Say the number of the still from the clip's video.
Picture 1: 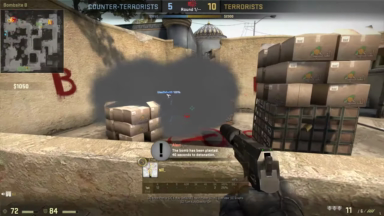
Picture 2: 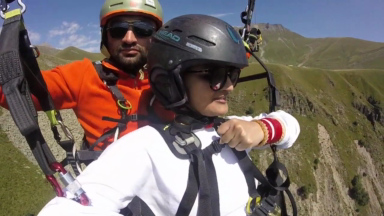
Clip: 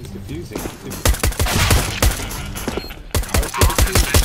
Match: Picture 1